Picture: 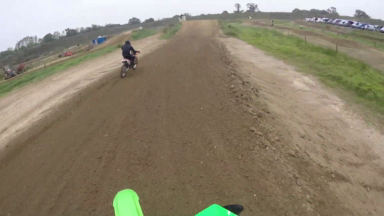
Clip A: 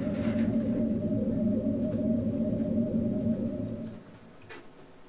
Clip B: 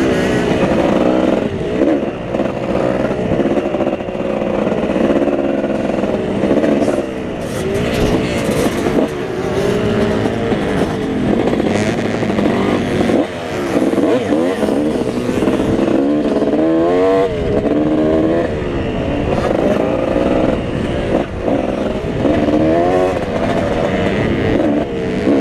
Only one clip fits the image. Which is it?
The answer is B